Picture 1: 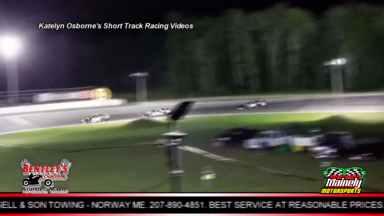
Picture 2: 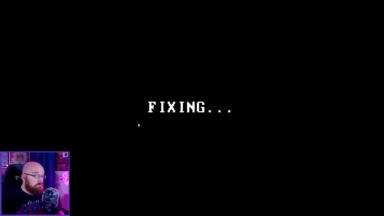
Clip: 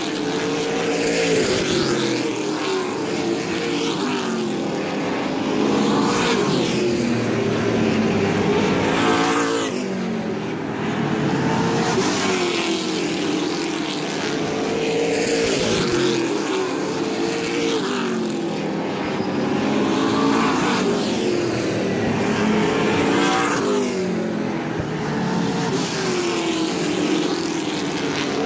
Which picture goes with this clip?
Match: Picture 1